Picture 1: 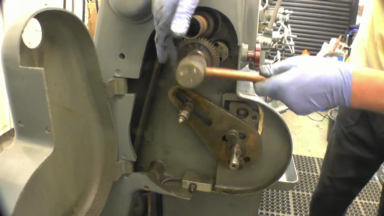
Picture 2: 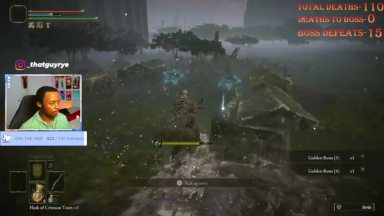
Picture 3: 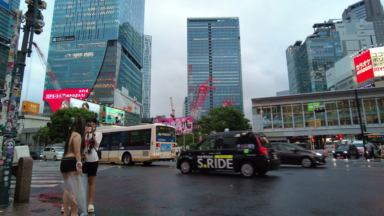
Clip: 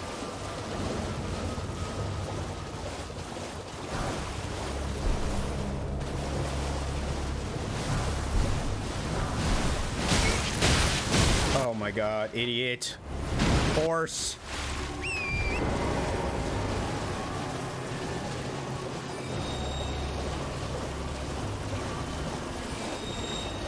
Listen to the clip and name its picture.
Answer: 2